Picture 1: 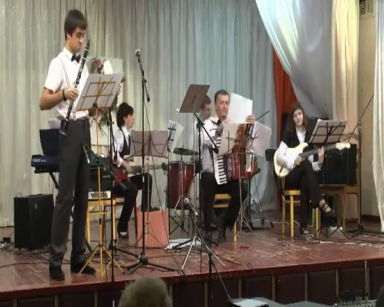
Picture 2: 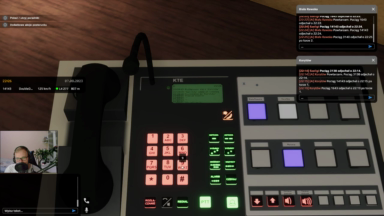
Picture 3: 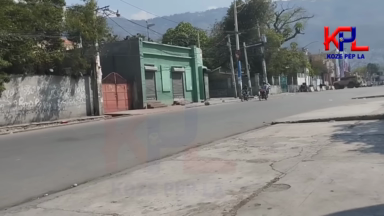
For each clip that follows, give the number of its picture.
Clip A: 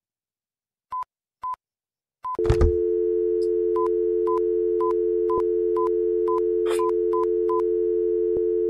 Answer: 2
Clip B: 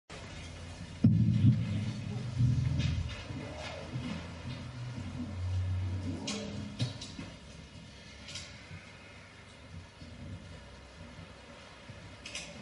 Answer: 1